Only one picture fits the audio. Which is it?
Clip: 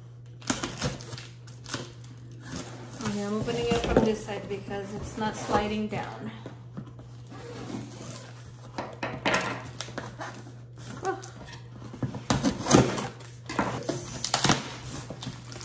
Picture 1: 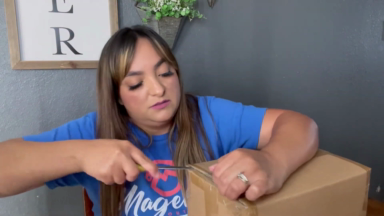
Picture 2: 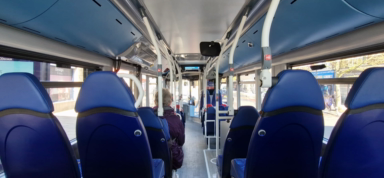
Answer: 1